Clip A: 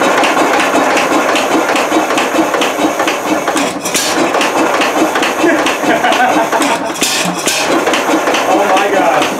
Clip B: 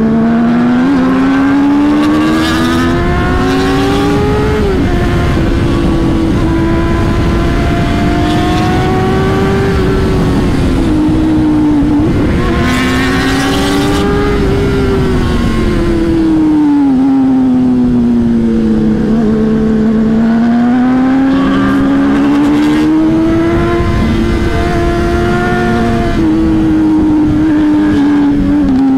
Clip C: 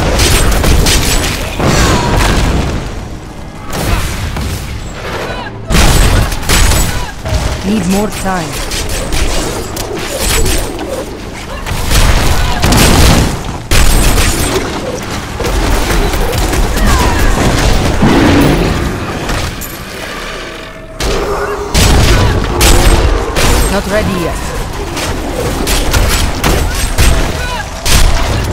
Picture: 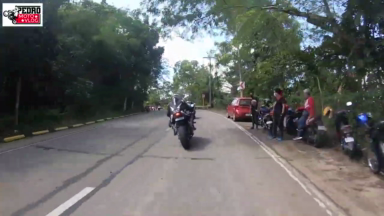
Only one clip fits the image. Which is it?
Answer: B